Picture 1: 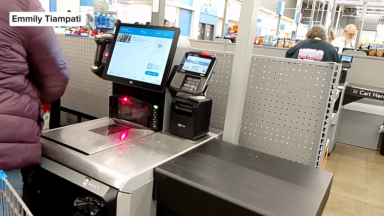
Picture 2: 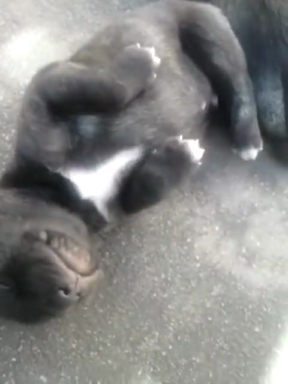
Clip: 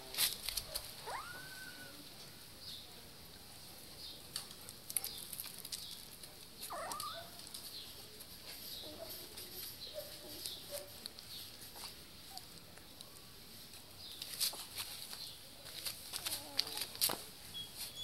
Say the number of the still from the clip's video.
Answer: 2